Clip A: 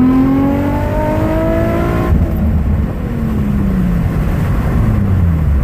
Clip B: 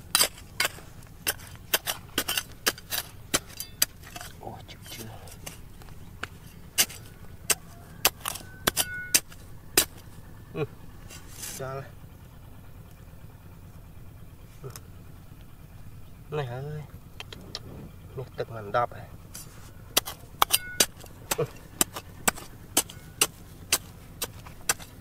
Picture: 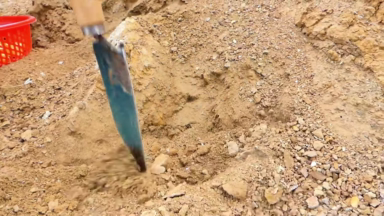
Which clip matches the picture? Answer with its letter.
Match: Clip B